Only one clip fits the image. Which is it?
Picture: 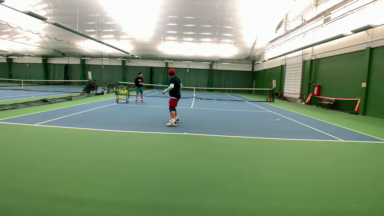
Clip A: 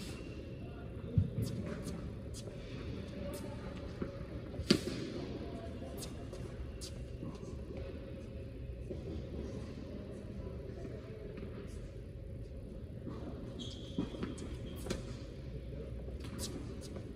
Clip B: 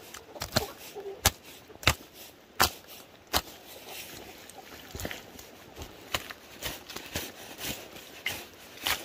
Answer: A